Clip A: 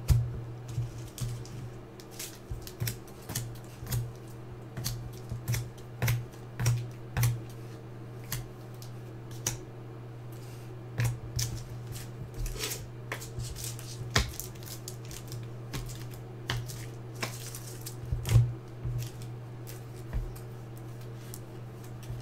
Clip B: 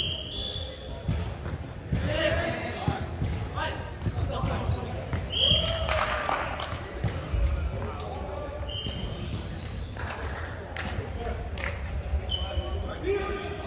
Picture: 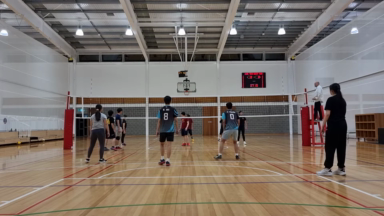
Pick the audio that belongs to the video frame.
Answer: B